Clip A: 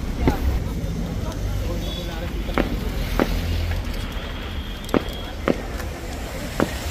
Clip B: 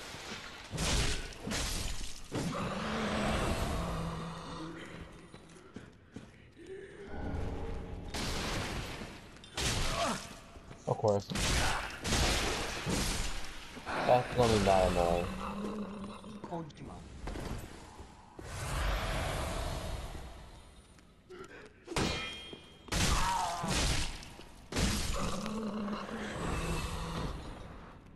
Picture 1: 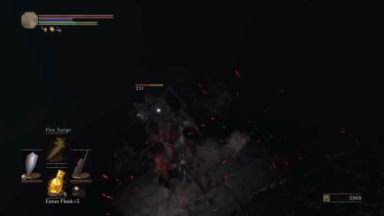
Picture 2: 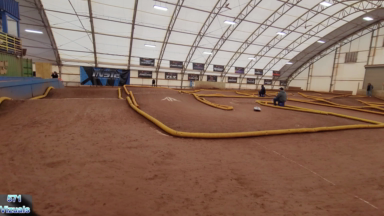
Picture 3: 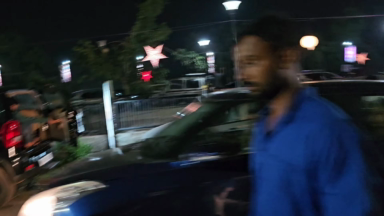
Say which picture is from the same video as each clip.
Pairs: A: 3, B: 1